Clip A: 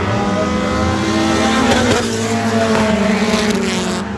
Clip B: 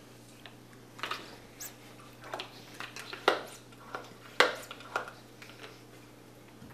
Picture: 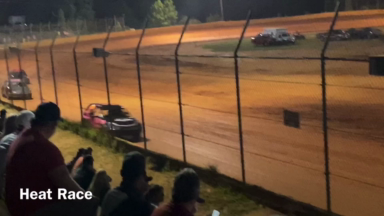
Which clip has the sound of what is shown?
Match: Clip A